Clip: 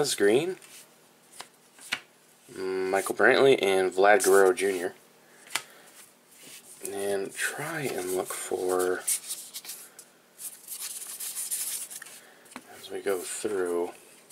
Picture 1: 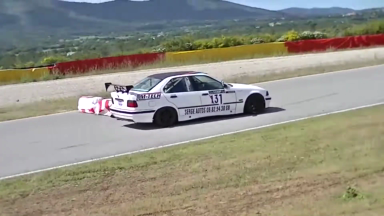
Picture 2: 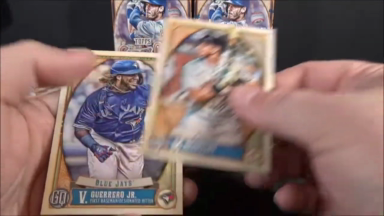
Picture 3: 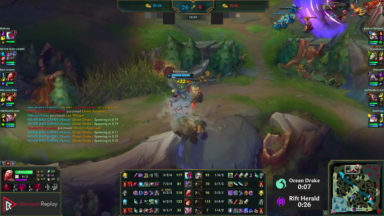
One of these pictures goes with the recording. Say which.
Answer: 2